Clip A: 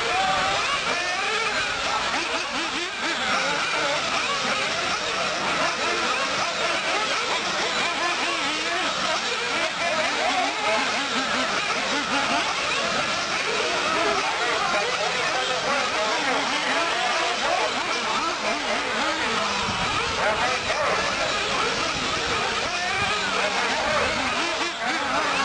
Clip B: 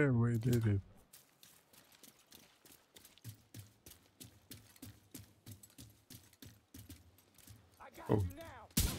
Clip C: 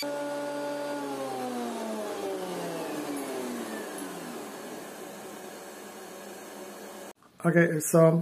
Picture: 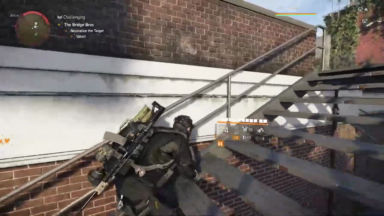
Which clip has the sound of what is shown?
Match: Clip B